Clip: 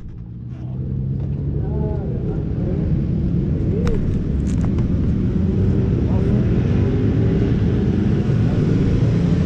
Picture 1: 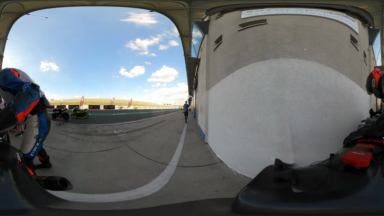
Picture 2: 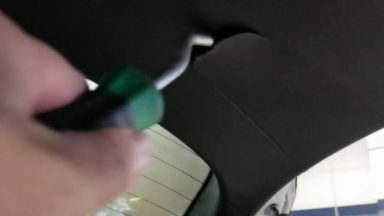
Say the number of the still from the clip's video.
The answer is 1